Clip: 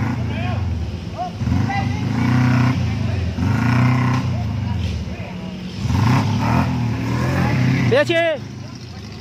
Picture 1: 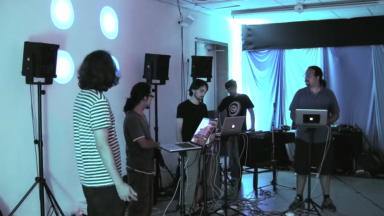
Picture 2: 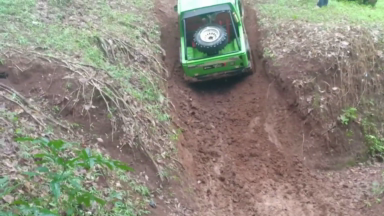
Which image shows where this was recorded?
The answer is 2